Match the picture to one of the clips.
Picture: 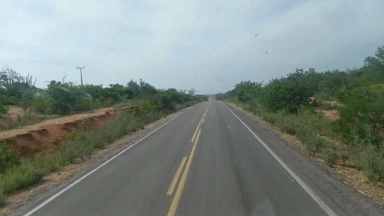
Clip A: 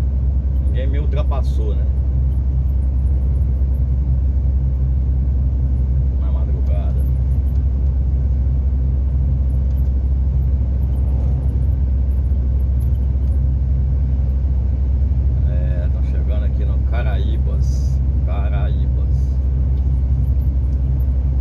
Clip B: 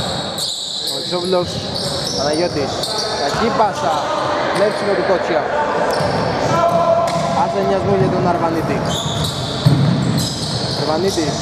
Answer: A